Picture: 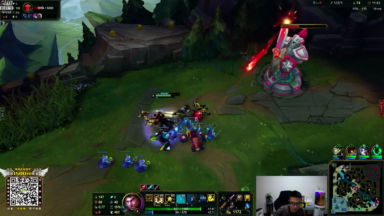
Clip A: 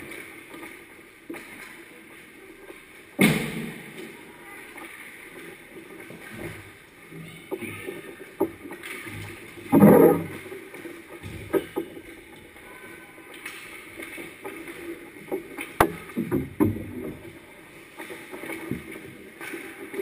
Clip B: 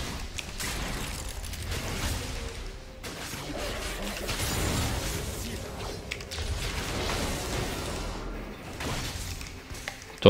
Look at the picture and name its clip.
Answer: B